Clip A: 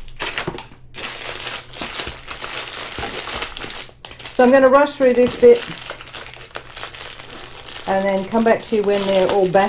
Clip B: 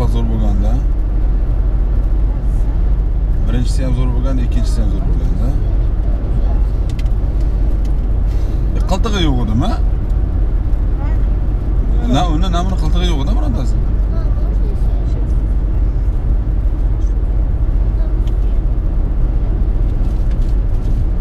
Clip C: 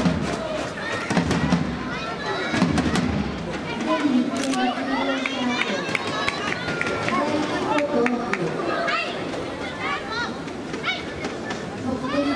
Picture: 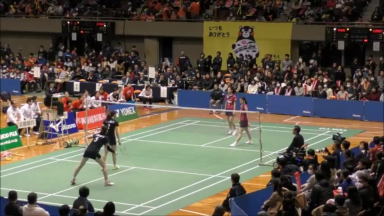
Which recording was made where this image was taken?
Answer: C